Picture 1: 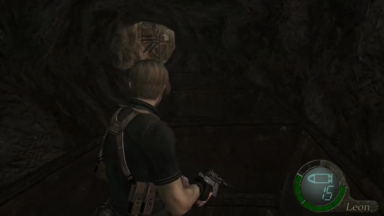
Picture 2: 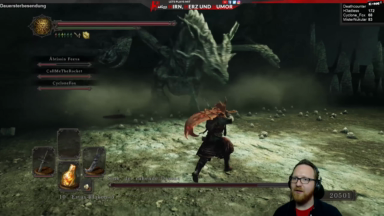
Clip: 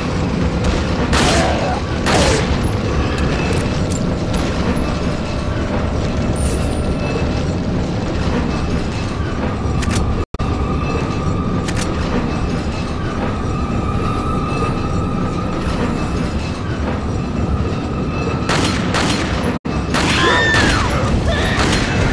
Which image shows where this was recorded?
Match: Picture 1